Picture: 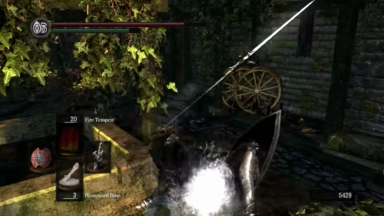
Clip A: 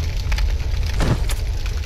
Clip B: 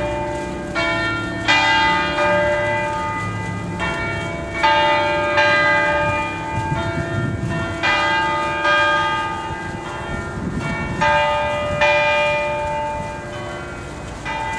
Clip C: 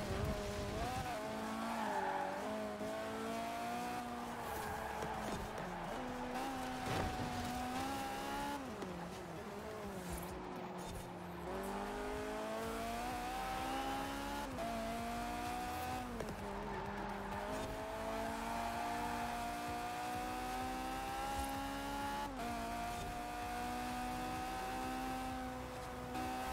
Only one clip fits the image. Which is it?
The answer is A